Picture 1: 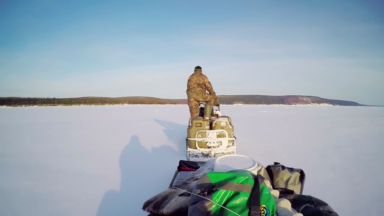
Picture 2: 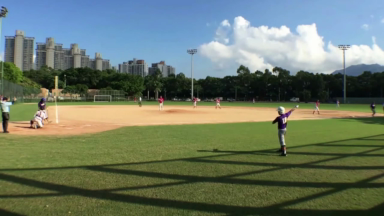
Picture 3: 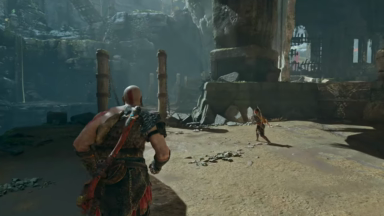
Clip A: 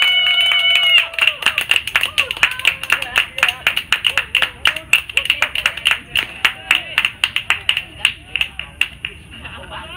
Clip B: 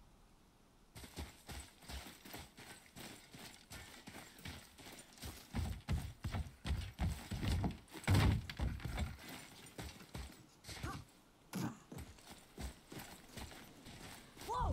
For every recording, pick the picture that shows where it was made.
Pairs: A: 2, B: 3